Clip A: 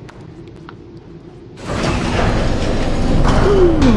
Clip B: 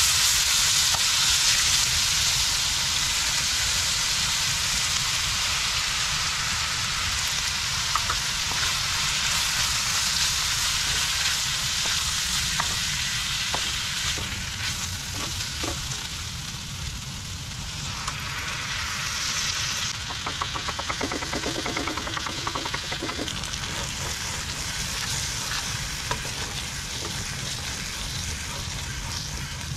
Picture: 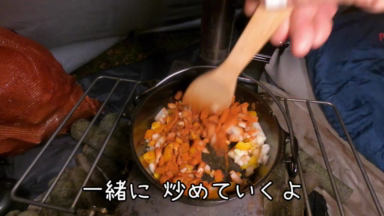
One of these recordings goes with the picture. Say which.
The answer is B